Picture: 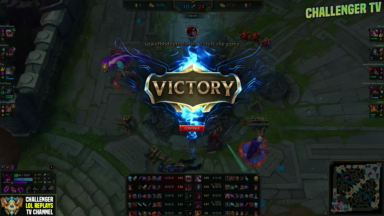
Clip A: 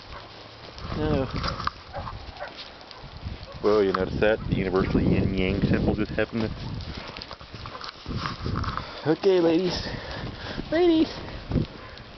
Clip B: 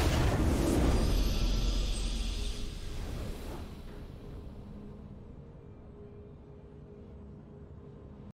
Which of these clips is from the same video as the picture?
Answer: B